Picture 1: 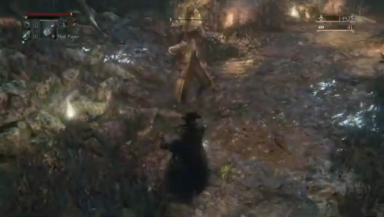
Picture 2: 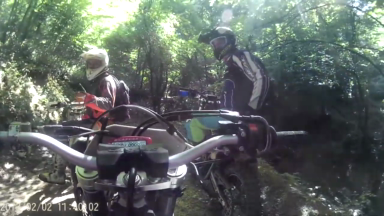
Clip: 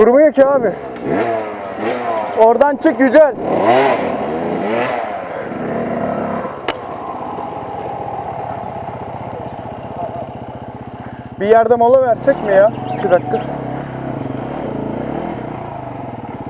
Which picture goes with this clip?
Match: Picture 2